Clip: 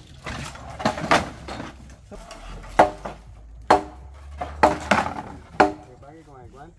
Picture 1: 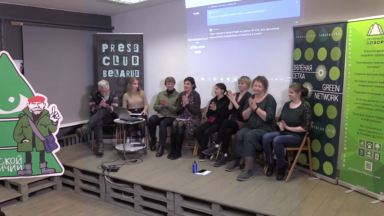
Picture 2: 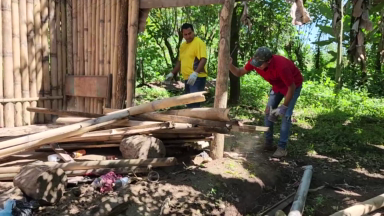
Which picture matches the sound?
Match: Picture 2